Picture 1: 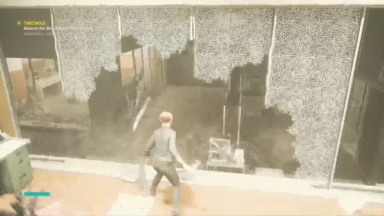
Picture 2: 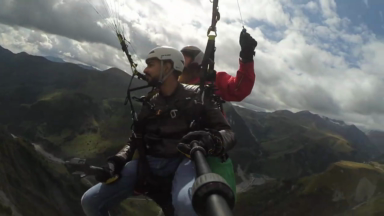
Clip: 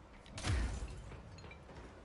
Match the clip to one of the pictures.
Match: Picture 1